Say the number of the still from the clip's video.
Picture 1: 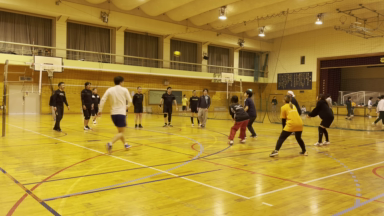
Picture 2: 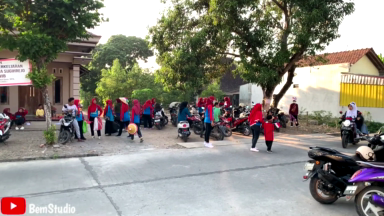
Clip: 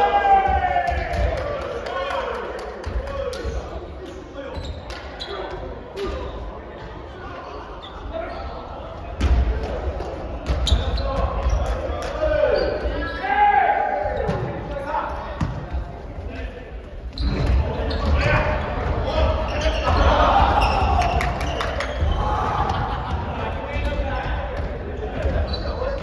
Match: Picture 1